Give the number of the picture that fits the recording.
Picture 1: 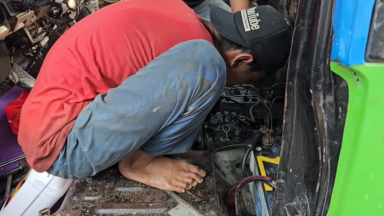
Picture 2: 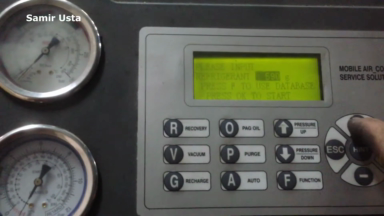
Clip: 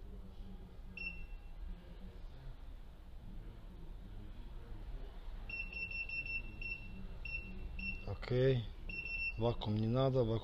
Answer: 2